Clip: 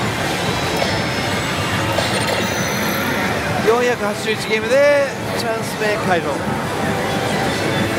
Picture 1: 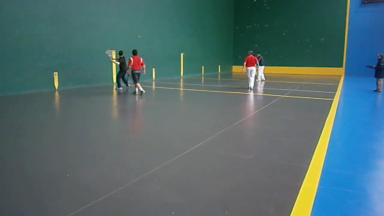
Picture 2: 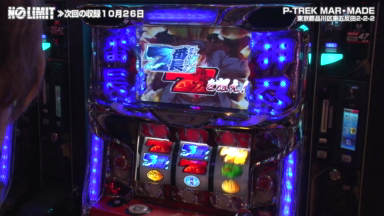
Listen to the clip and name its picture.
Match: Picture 2